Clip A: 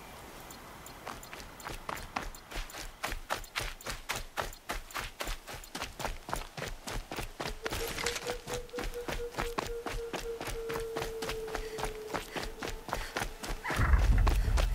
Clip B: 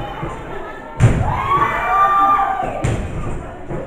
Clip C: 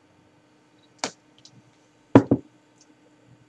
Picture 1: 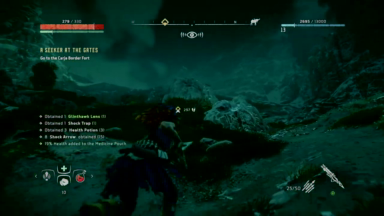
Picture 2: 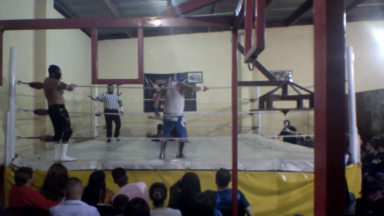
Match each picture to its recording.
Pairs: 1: A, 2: B